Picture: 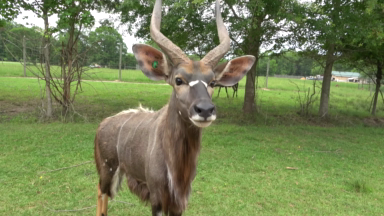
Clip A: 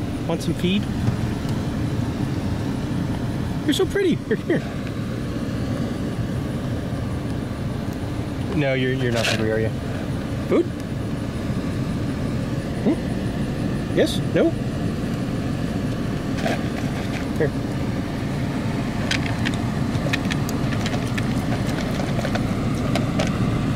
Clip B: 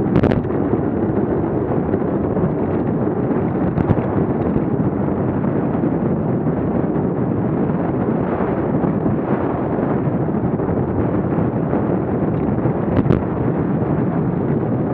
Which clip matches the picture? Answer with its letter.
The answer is A